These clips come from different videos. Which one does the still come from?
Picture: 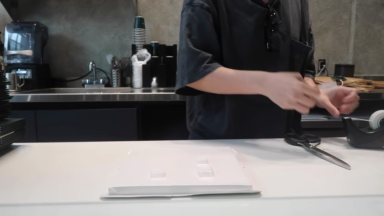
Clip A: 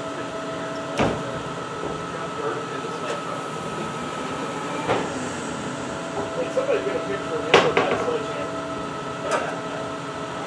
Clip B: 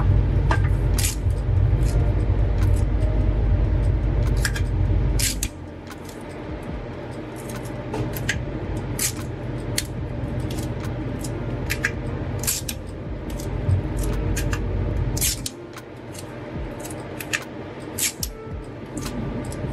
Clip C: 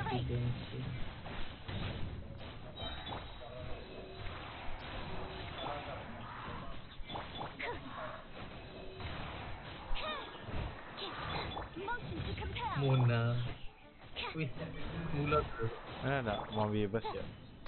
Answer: B